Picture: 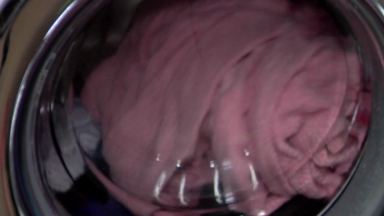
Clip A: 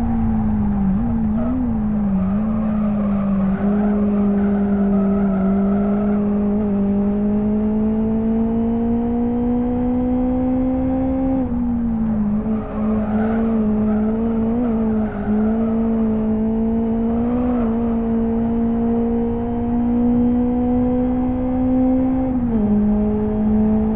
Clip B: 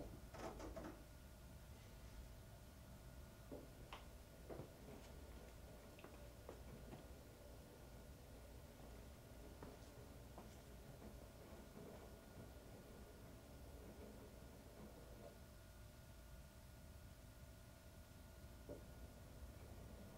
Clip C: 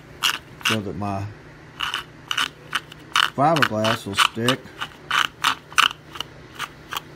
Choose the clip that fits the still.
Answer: B